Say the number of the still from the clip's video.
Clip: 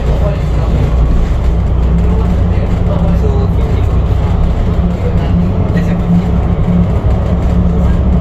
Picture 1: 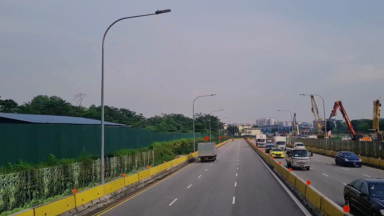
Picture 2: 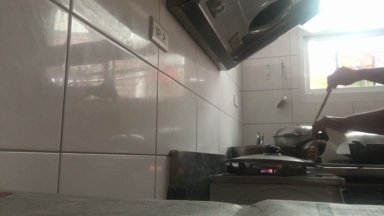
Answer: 1